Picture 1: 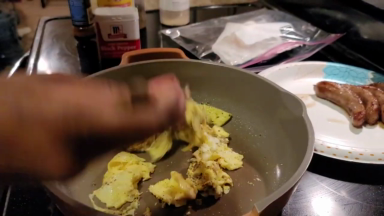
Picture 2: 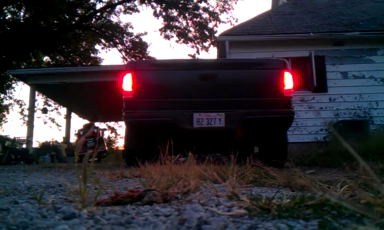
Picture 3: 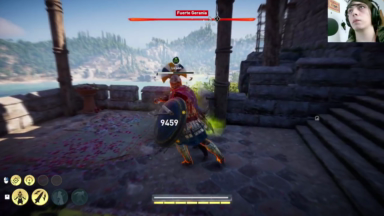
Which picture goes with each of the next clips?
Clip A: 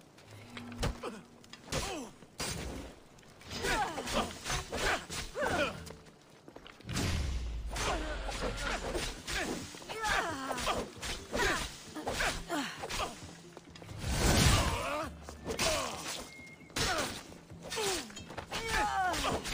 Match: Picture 3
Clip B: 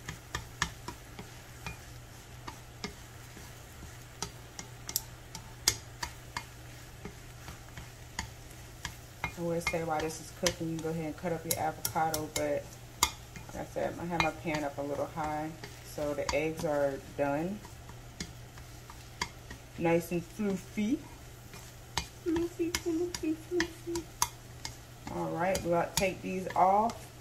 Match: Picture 1